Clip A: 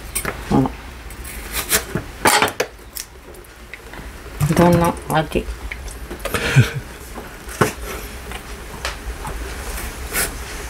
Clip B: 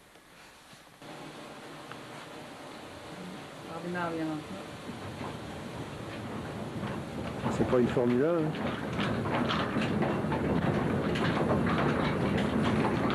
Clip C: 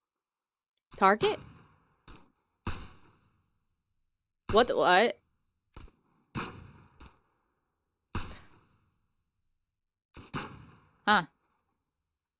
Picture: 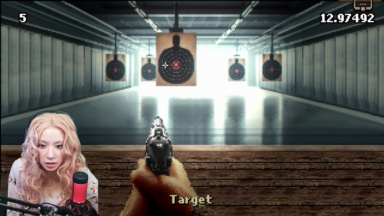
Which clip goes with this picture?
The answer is C